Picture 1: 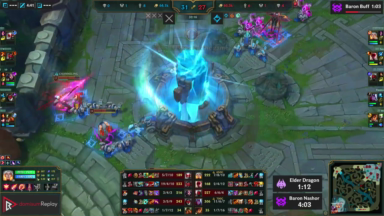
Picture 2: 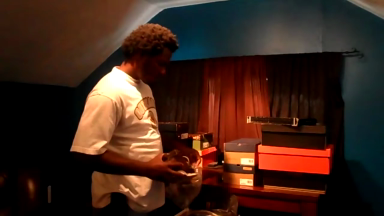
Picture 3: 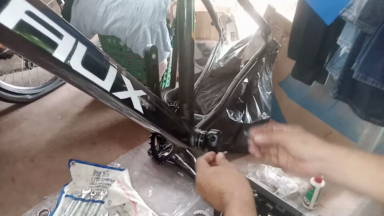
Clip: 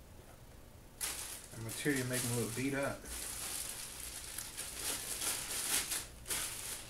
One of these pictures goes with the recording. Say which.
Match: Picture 2